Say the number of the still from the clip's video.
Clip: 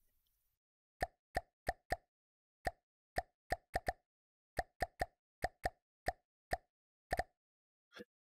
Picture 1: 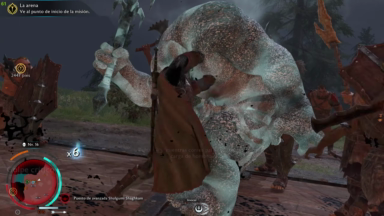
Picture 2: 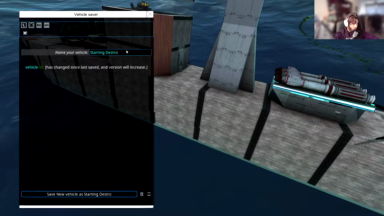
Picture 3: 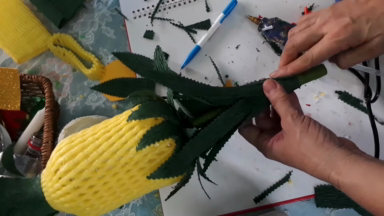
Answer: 2